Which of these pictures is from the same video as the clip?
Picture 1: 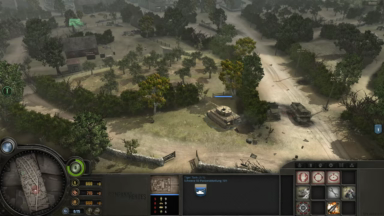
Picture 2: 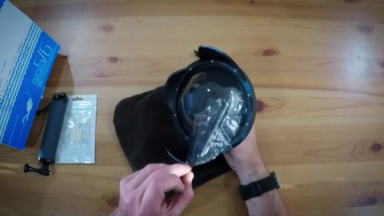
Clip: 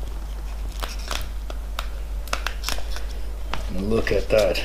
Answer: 2